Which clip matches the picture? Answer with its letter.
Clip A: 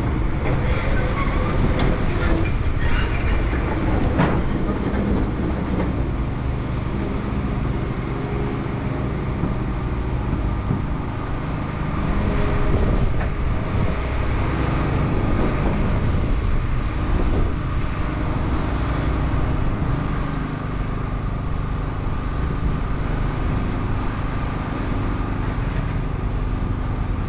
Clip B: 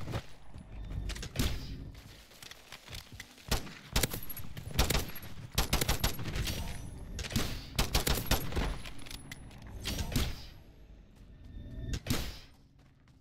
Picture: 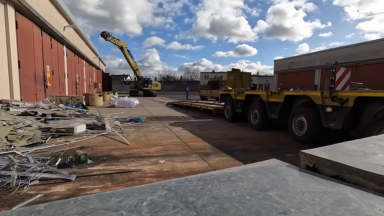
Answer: A